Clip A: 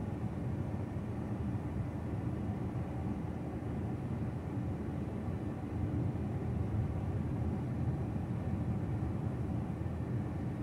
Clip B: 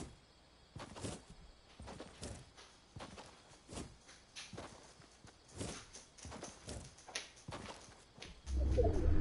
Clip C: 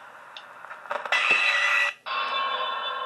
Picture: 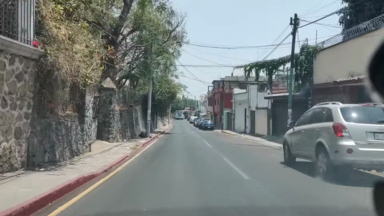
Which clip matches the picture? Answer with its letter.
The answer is A